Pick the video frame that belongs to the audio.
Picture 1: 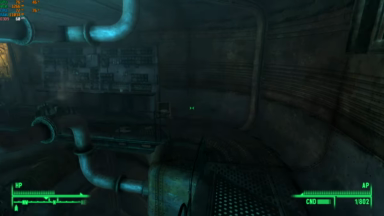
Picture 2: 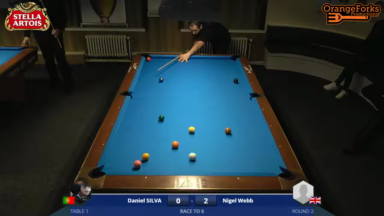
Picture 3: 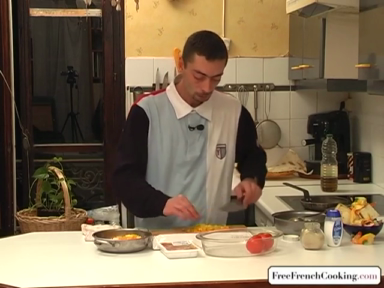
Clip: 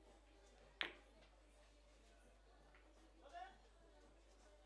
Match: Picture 2